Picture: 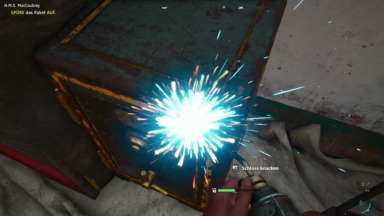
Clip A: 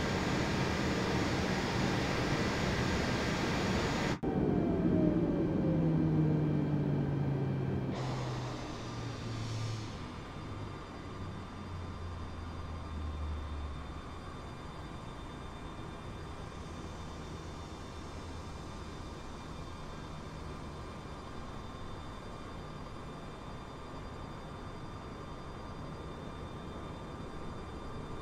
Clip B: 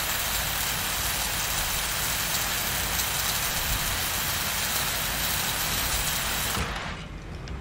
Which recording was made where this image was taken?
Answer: B